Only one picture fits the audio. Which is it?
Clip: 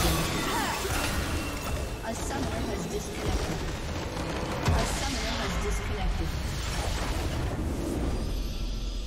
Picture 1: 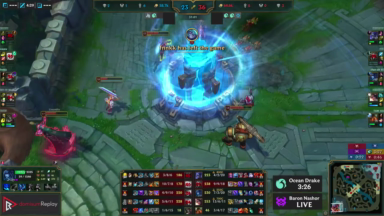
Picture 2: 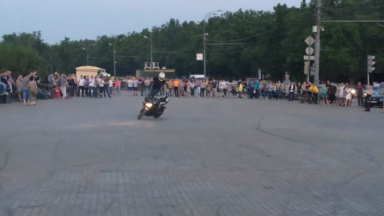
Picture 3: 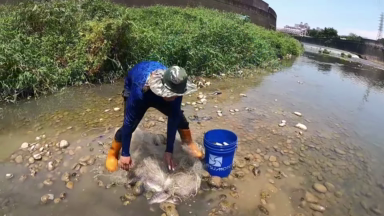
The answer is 1